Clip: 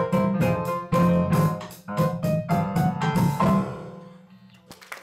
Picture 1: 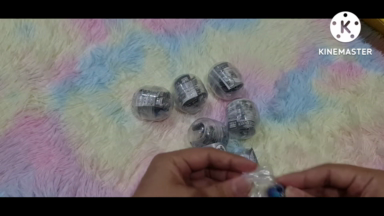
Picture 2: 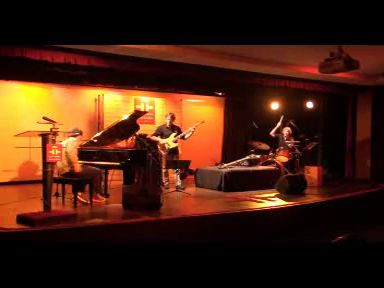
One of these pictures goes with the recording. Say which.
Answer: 2